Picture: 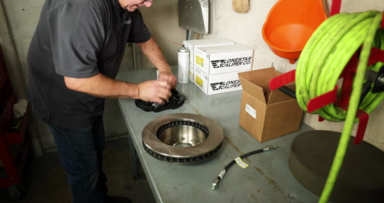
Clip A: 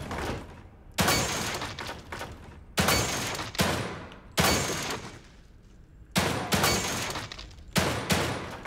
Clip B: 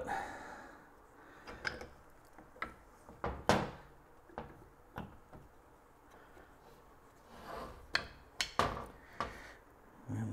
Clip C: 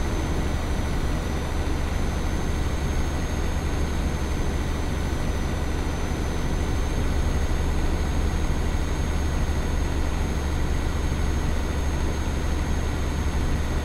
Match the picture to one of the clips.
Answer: B